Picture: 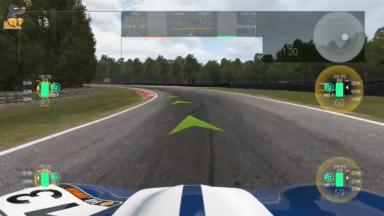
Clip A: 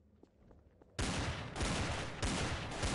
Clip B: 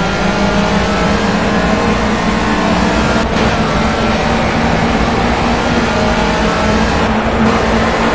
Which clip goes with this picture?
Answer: B